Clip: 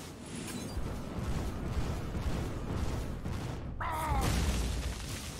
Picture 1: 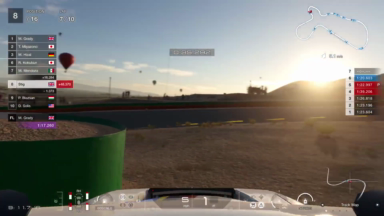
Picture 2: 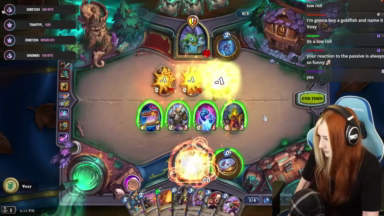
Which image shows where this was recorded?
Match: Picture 2